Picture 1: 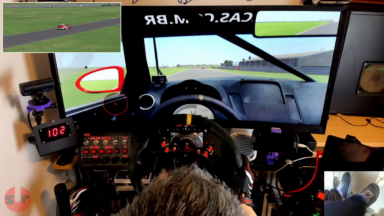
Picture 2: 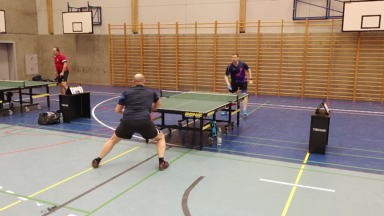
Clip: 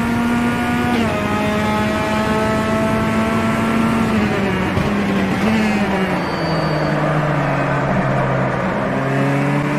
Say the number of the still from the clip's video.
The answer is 1